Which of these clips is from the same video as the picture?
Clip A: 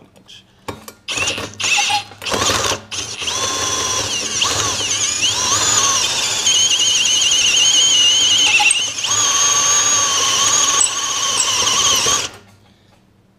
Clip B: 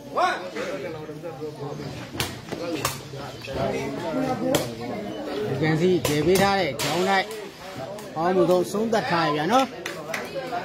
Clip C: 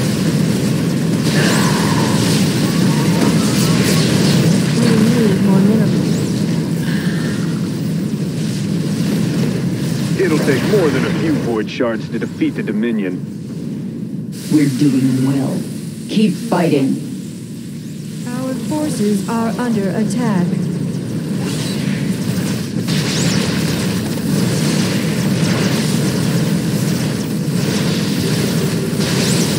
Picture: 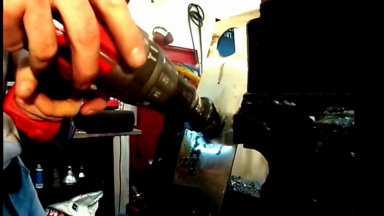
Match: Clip A